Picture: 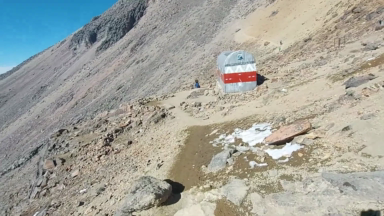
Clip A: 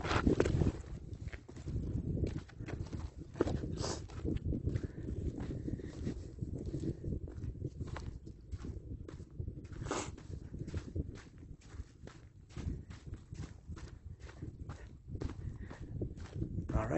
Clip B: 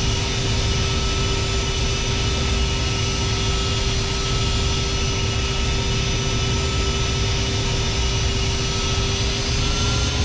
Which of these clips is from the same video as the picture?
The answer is A